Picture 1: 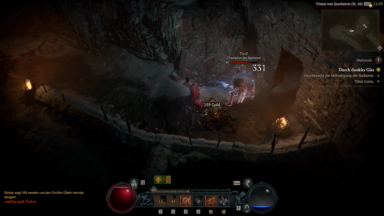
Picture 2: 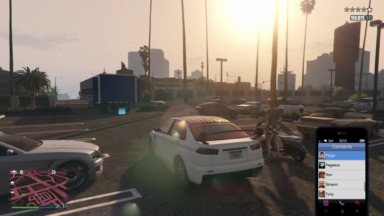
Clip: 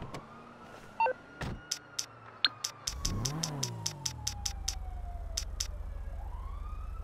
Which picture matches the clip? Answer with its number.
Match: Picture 2